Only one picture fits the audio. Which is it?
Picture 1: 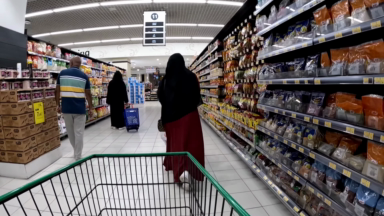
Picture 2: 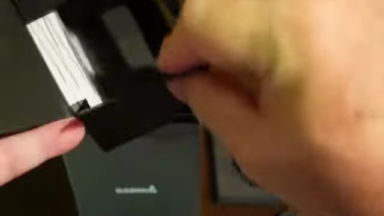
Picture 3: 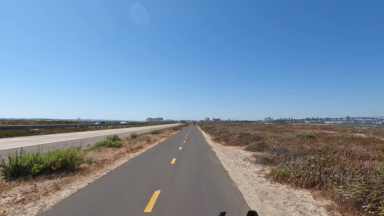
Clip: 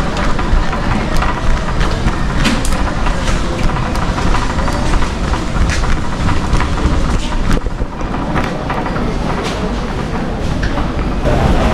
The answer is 1